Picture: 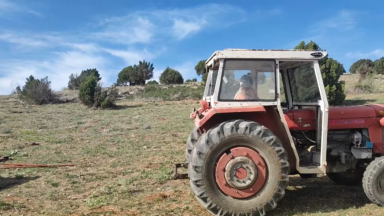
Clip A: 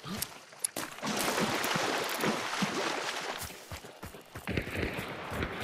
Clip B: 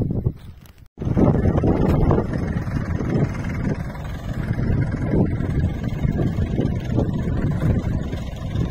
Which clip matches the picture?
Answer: B